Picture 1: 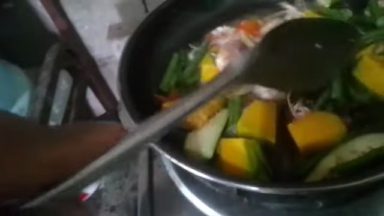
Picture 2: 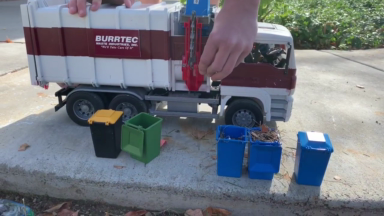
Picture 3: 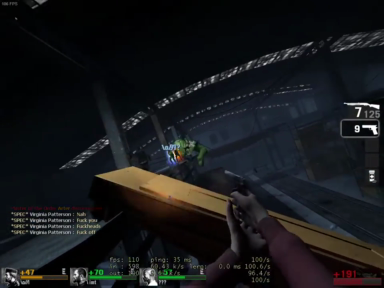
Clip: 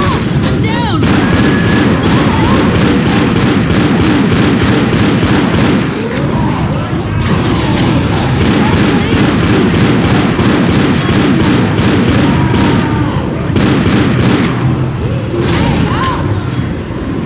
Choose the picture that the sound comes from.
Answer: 3